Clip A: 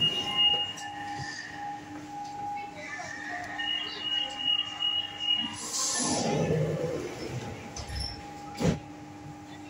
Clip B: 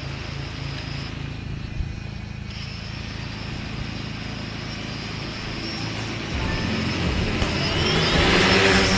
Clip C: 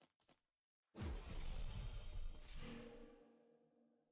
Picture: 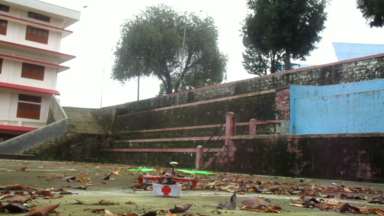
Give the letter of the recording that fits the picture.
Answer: B